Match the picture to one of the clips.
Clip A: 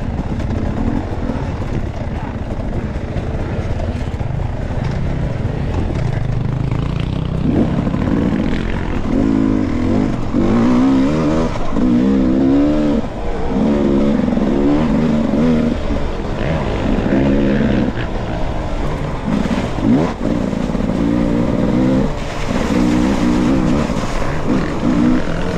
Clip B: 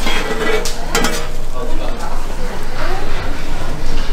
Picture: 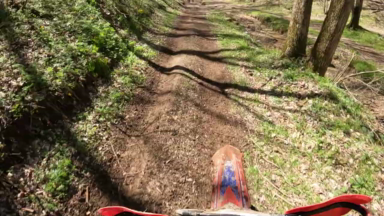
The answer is A